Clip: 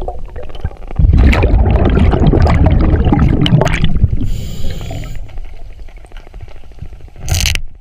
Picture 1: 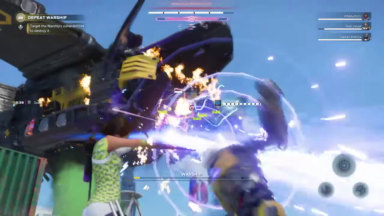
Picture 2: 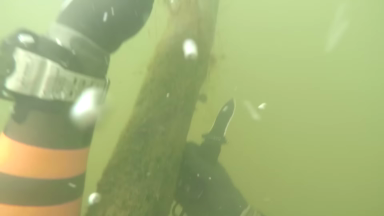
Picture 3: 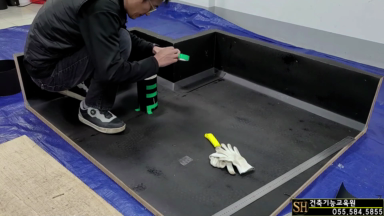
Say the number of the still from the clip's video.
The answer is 2